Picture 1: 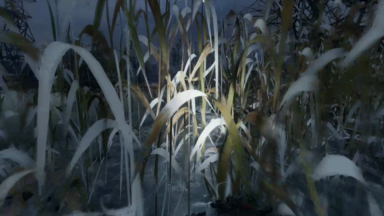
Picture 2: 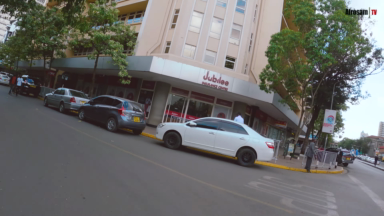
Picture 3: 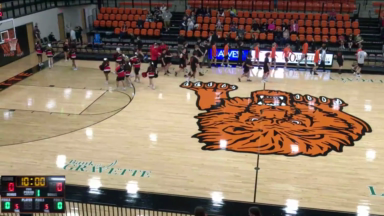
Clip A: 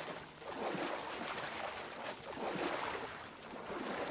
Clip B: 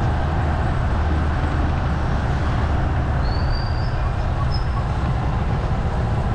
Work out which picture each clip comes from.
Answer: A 1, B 2